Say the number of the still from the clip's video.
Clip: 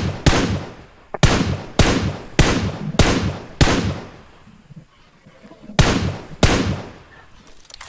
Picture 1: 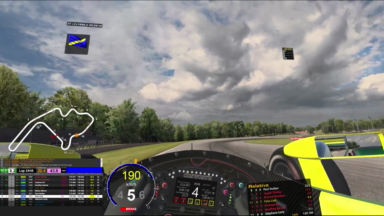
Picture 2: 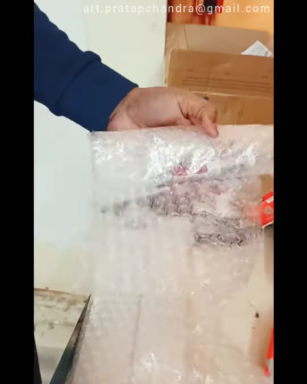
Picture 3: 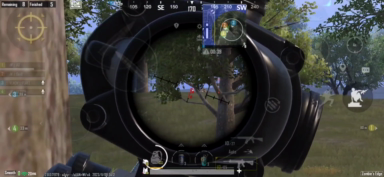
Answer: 3